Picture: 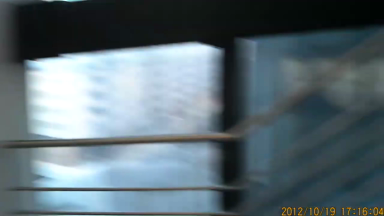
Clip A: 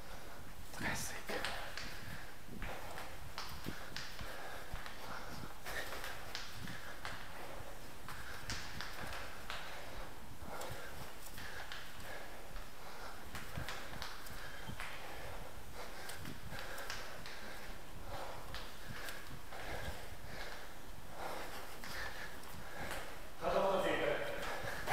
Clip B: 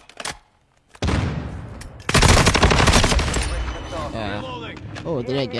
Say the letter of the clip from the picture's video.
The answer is A